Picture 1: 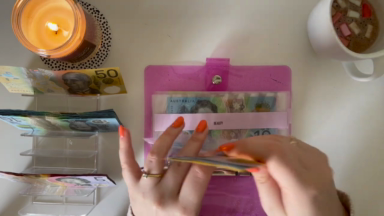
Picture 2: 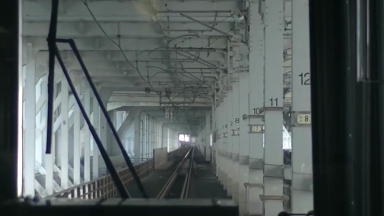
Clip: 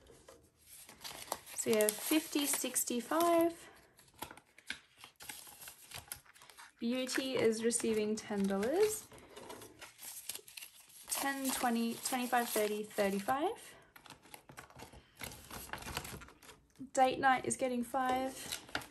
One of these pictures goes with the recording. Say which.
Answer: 1